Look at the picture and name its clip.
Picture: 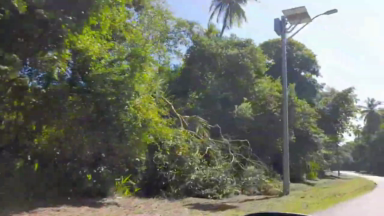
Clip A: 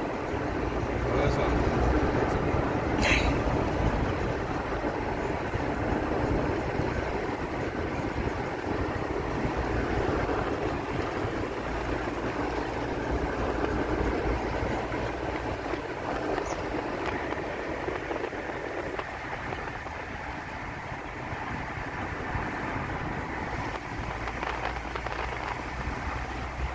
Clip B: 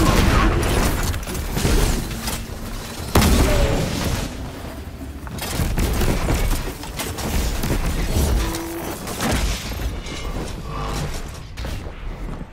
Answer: A